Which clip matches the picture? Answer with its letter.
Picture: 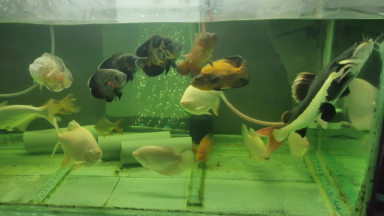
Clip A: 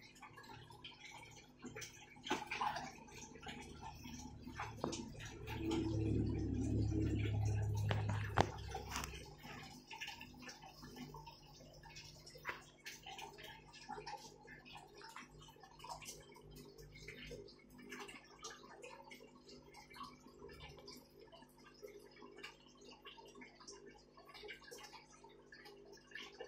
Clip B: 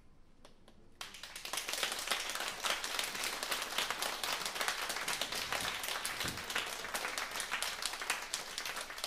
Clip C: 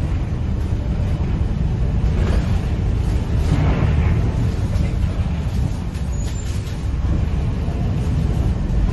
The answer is A